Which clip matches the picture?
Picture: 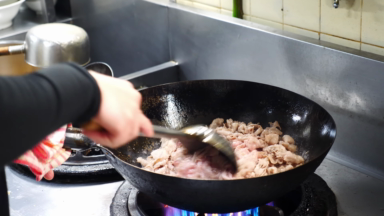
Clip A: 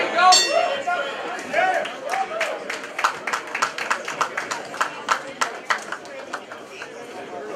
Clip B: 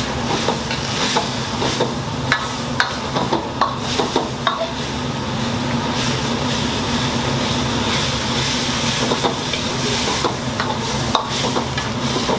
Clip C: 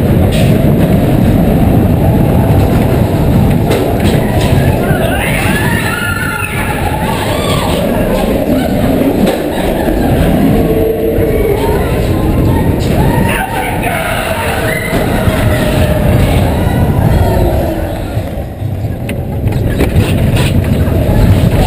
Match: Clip B